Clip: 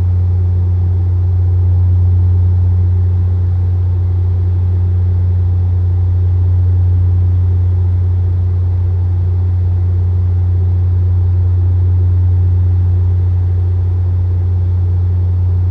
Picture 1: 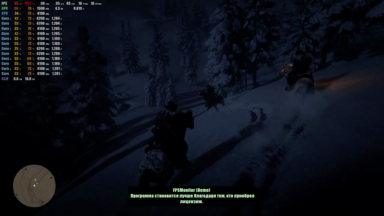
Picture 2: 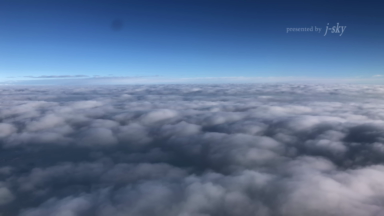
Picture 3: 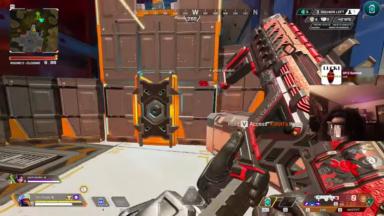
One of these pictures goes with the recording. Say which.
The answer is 2